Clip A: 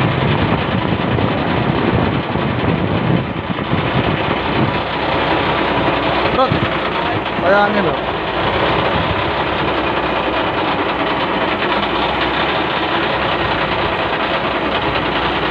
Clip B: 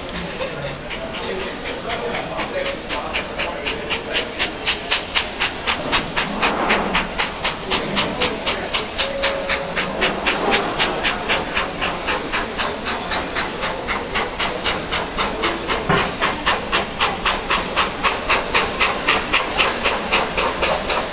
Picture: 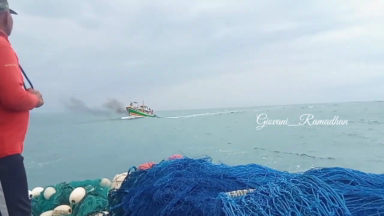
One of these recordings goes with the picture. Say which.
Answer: A